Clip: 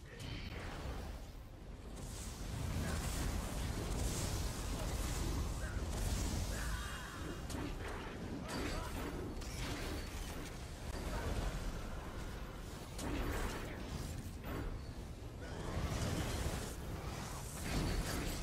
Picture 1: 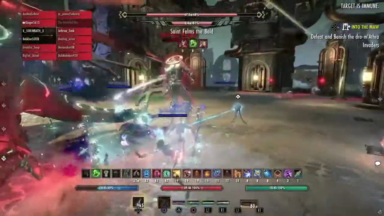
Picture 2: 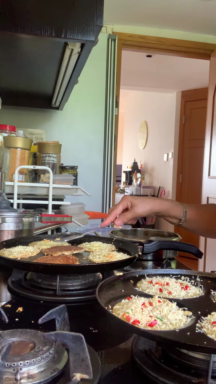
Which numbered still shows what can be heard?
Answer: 1